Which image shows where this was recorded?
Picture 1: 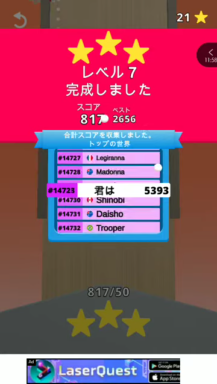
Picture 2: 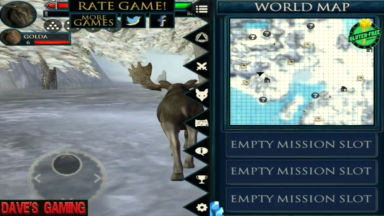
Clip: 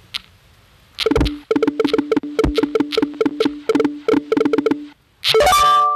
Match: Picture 1